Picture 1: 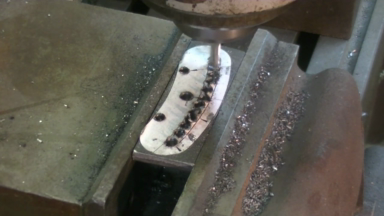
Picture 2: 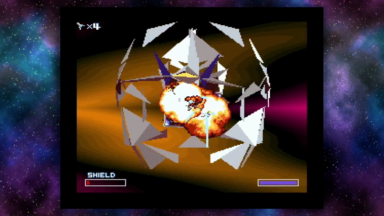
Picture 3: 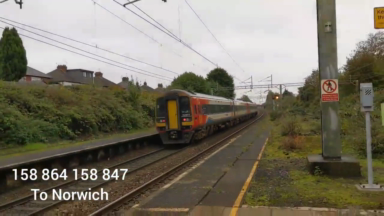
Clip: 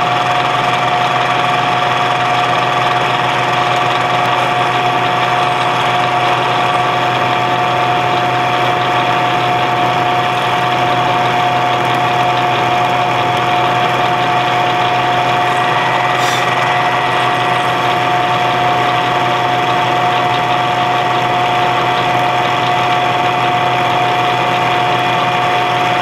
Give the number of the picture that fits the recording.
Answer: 1